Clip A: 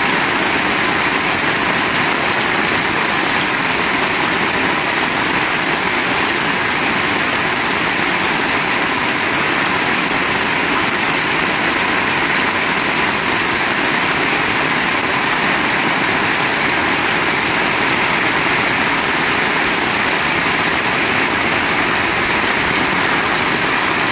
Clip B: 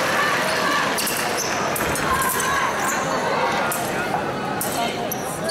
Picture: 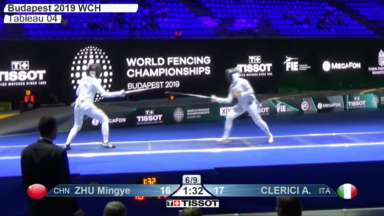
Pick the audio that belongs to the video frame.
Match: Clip B